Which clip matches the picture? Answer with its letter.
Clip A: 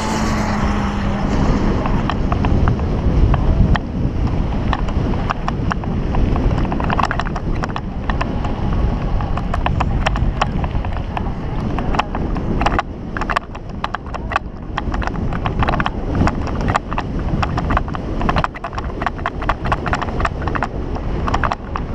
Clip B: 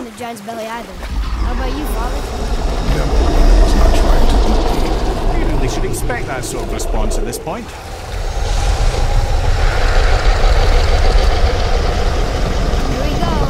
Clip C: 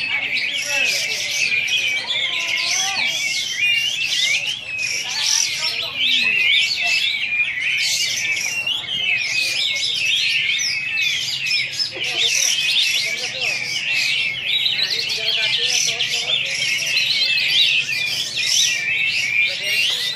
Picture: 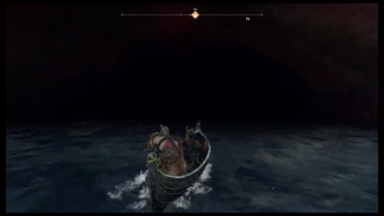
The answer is B